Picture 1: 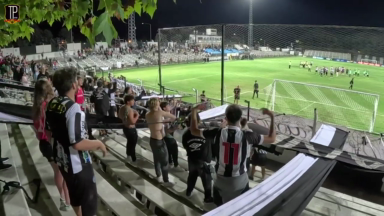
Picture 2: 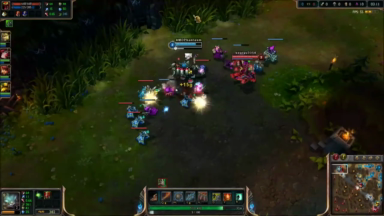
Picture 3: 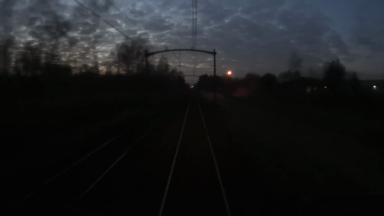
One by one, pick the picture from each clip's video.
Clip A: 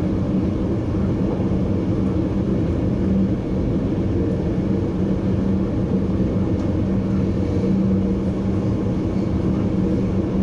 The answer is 3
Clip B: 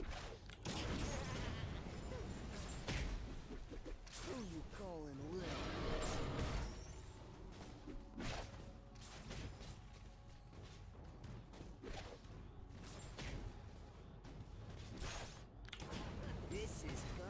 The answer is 2